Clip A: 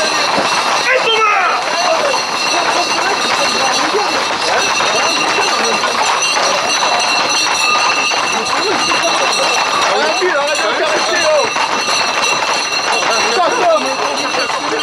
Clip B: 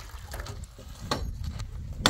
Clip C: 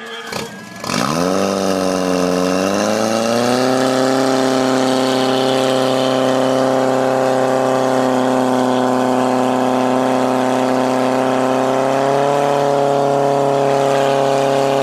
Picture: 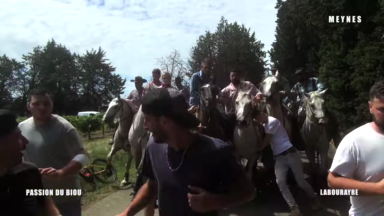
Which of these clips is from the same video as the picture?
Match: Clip A